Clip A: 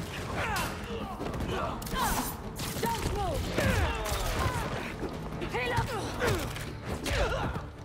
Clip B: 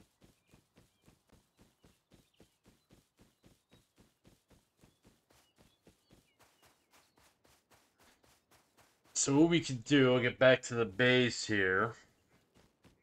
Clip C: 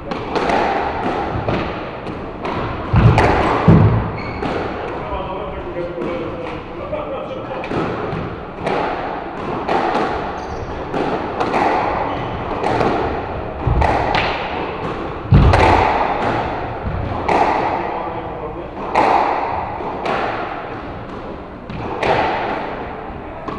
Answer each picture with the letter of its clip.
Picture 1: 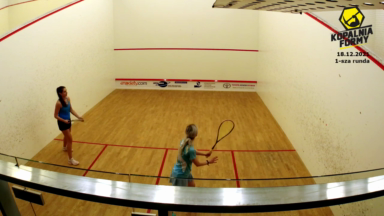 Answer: C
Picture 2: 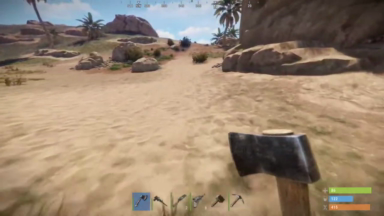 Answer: B